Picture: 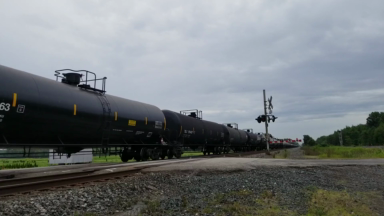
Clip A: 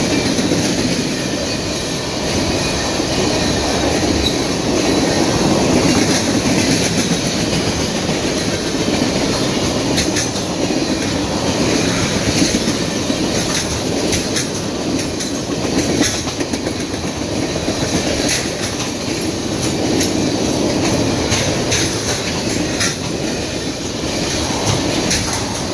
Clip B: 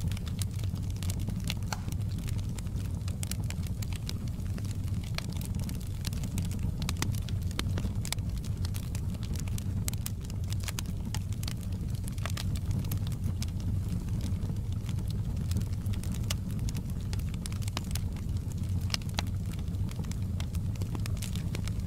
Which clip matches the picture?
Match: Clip A